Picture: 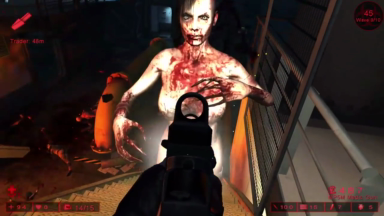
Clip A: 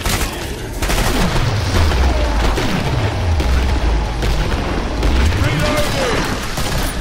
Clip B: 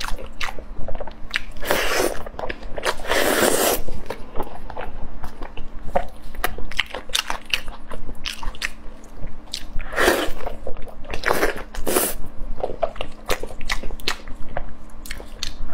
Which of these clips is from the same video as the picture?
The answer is A